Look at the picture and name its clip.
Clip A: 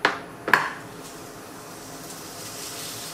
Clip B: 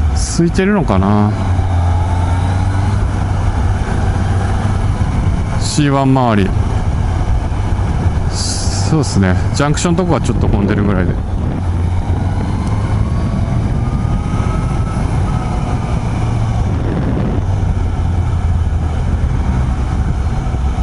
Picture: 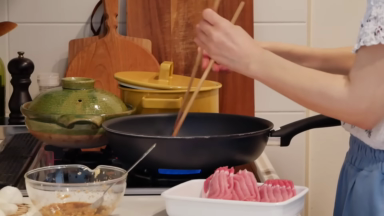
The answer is A